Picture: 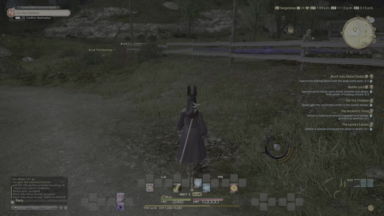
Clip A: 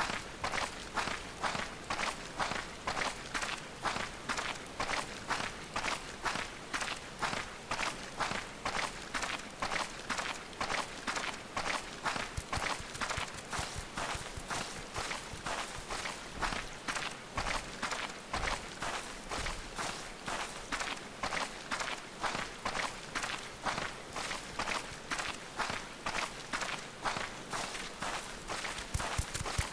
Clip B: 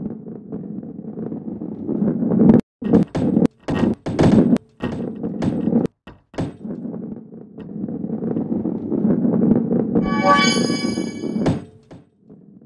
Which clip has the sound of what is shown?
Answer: A